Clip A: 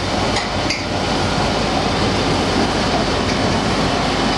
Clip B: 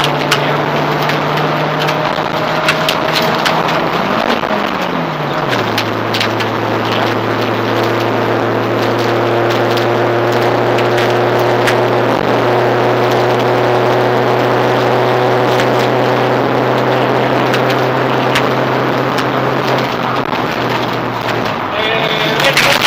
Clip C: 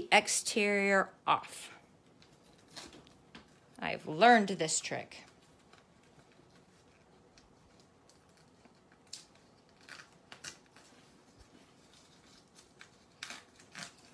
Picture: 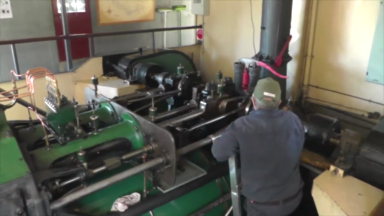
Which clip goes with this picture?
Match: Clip A